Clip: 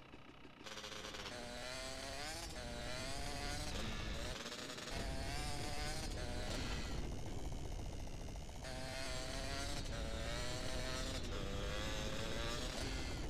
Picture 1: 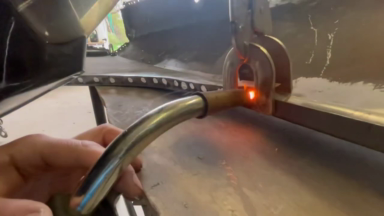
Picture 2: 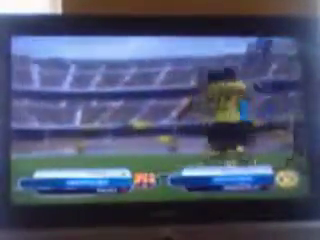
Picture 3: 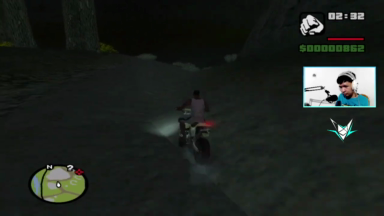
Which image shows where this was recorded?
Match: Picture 3